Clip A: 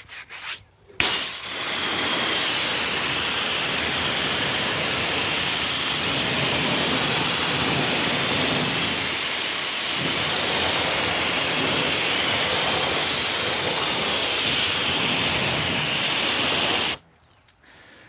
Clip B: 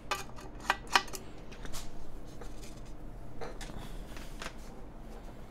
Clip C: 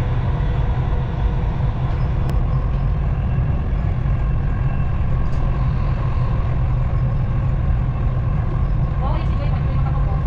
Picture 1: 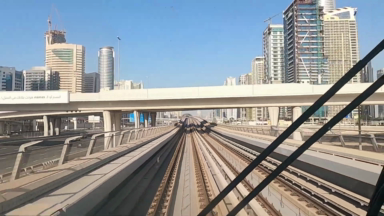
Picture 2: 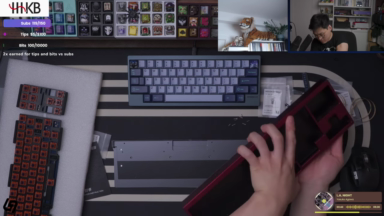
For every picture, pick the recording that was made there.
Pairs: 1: C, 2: B